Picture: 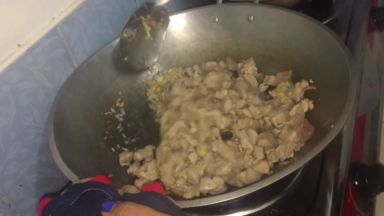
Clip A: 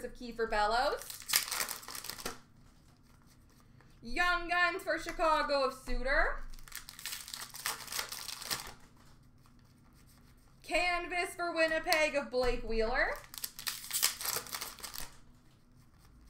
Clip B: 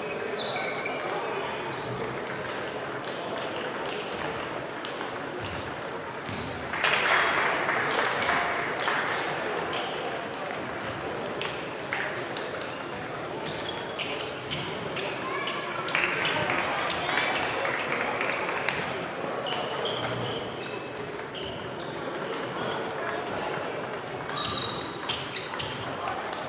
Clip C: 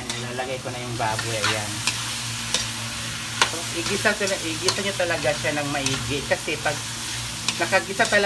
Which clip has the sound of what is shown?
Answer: C